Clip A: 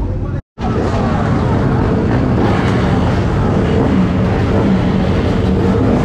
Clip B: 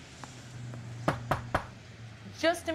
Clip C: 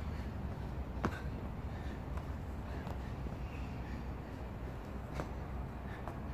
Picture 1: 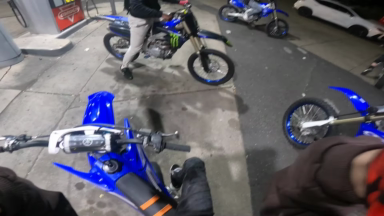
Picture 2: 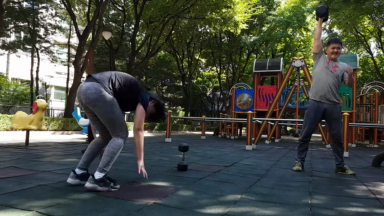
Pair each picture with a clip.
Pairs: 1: A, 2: C